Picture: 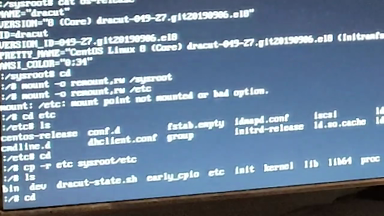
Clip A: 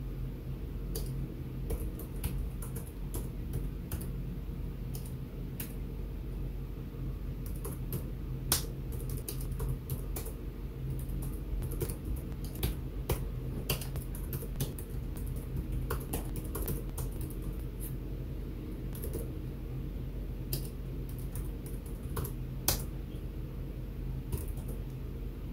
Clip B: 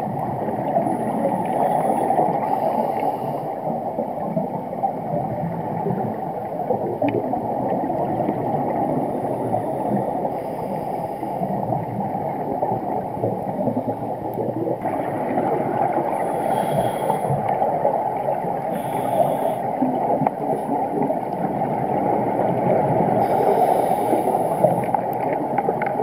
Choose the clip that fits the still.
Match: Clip A